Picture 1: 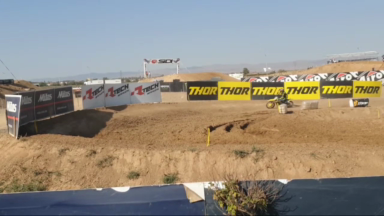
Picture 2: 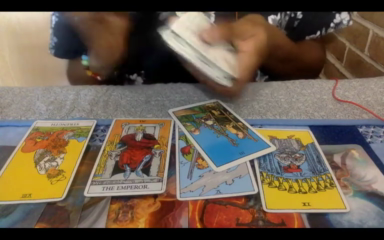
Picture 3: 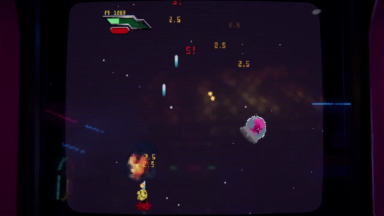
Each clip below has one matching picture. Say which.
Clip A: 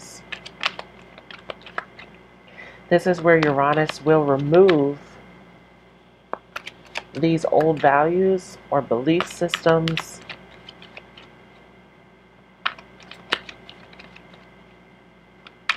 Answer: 2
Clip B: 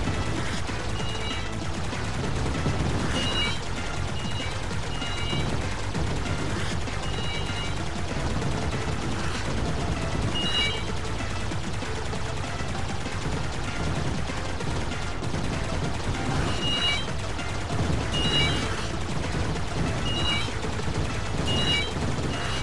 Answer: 3